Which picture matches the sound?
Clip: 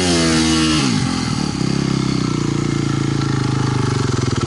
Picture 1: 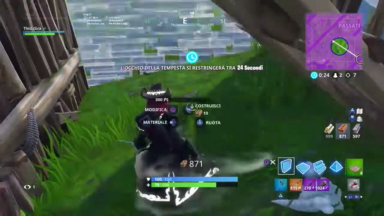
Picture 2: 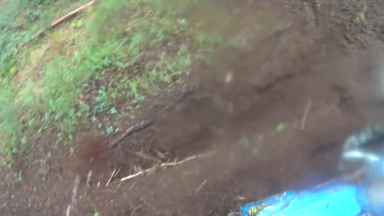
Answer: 2